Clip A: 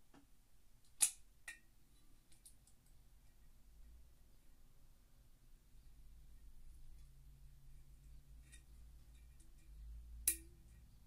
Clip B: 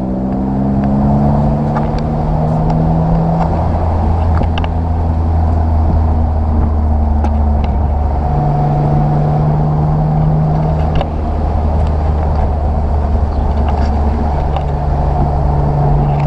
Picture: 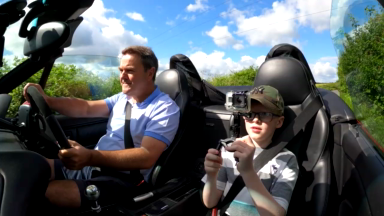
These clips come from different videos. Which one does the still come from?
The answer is B